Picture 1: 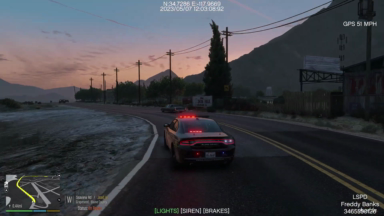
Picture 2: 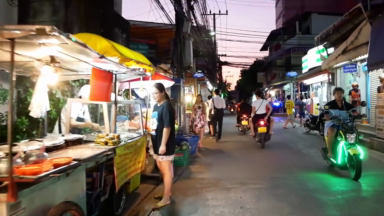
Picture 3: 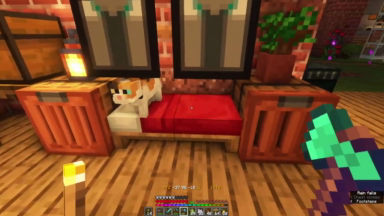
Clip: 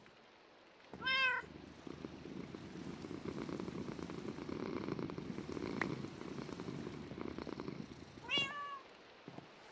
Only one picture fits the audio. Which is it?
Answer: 3